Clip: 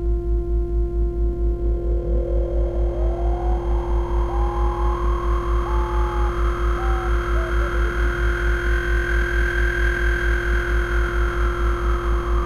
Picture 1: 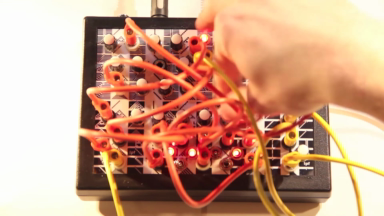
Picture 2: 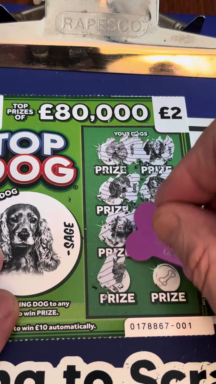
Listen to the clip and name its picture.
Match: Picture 1